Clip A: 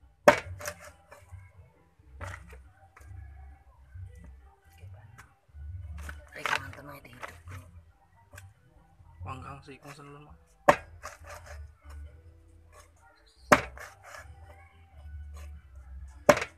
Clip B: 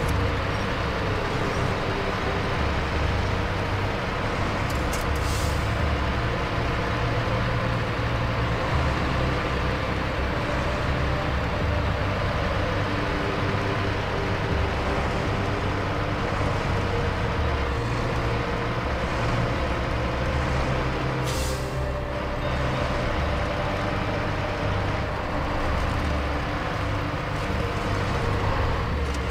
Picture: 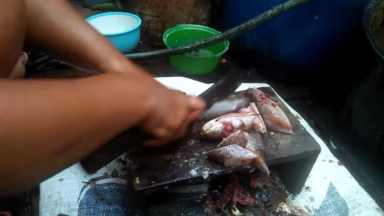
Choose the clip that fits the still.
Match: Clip A